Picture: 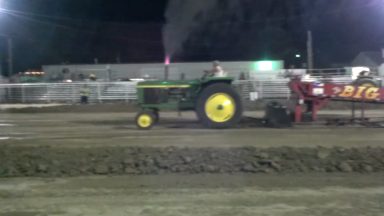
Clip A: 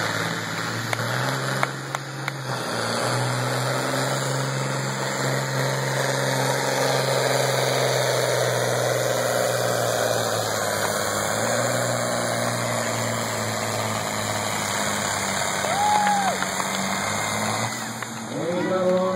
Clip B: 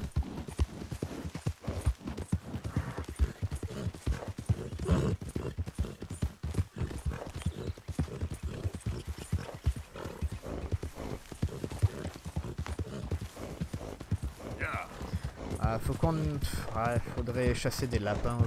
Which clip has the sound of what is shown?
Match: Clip A